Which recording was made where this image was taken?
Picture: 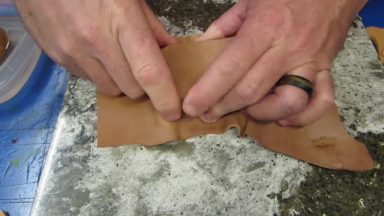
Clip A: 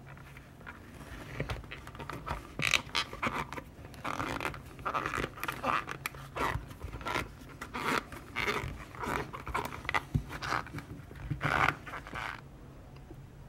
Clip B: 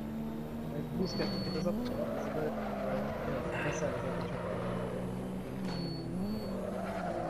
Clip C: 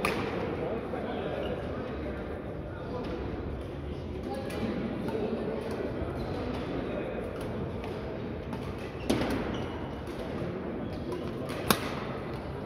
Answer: A